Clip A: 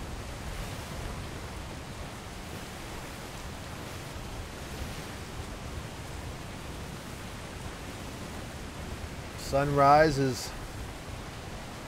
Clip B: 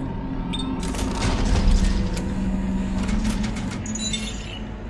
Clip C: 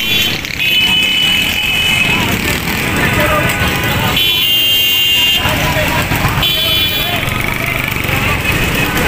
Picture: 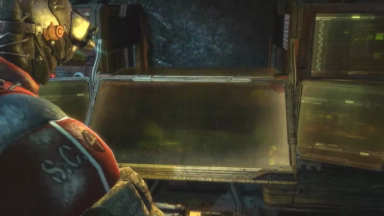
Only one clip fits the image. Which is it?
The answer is B